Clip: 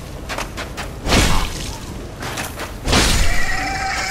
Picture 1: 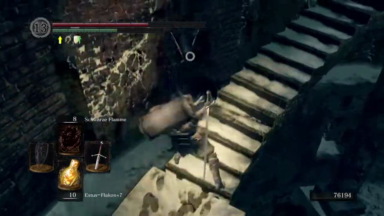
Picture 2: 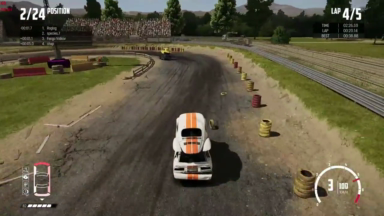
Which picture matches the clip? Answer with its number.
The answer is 1